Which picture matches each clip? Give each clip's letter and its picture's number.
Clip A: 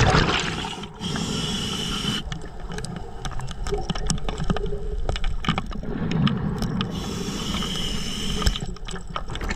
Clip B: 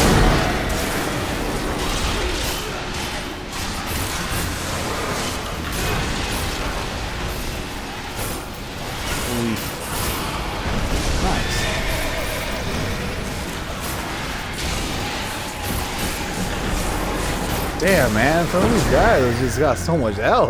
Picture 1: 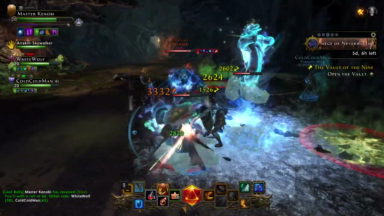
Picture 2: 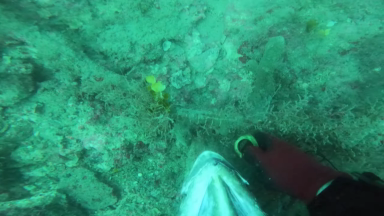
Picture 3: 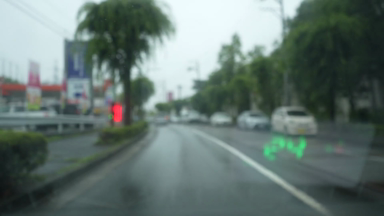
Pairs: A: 2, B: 1